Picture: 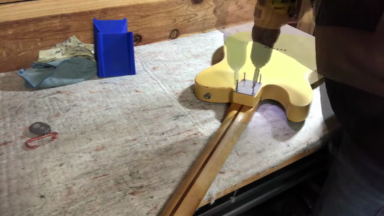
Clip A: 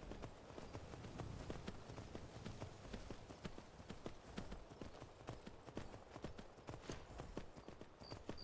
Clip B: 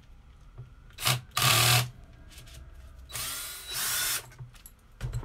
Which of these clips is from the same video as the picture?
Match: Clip B